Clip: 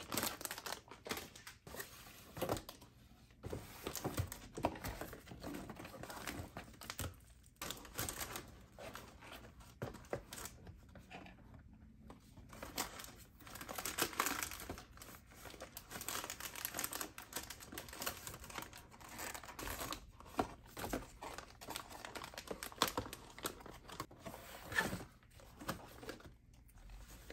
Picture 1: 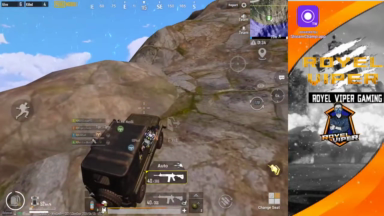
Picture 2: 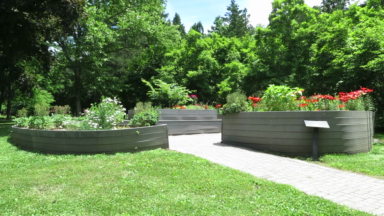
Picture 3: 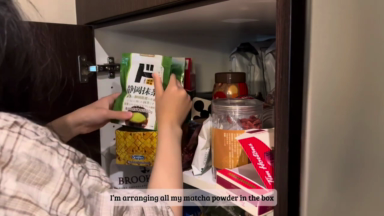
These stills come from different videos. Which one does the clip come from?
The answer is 3